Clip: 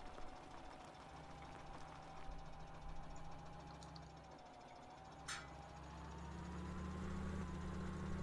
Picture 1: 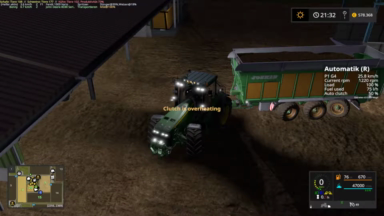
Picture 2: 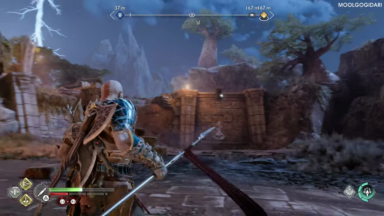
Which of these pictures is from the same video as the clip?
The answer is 1